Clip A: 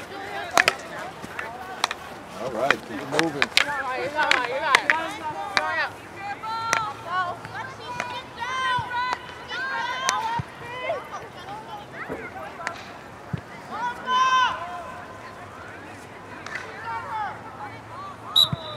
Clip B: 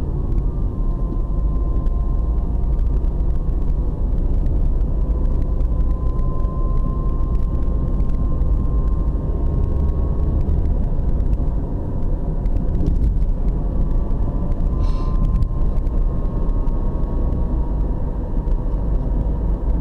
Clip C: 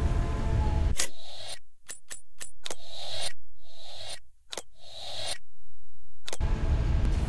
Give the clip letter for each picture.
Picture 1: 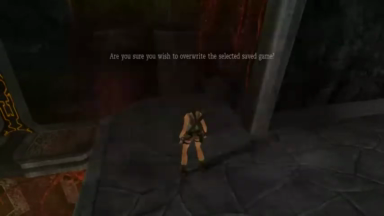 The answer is C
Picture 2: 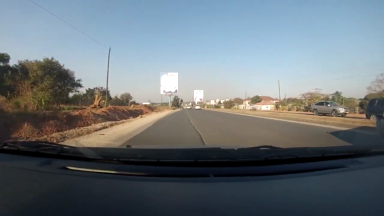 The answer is B